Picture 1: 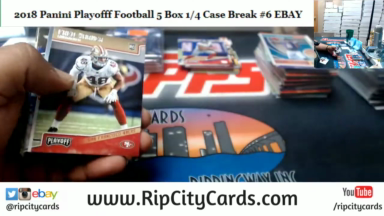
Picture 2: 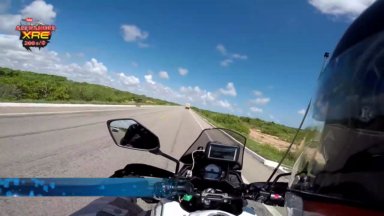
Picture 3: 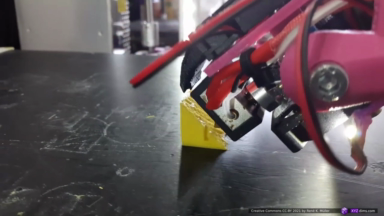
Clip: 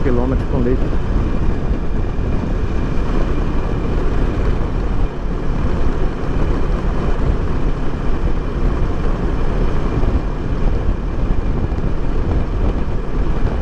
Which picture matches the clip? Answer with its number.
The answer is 2